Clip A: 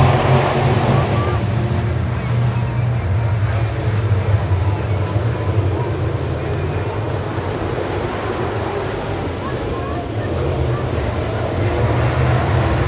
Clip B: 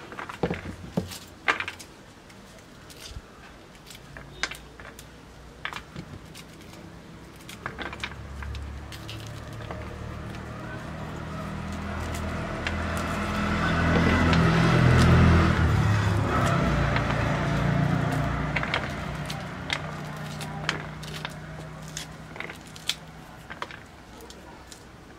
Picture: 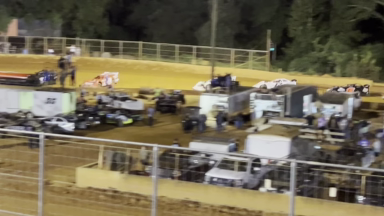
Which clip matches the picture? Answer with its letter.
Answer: A